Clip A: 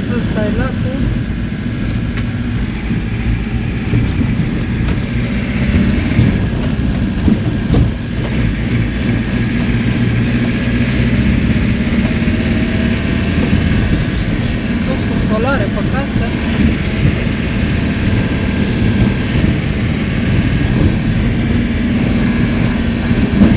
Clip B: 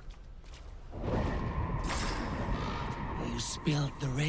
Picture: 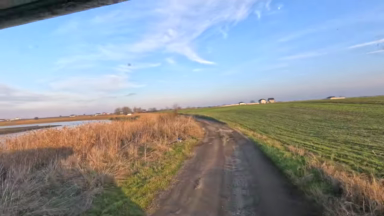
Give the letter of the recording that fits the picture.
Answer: A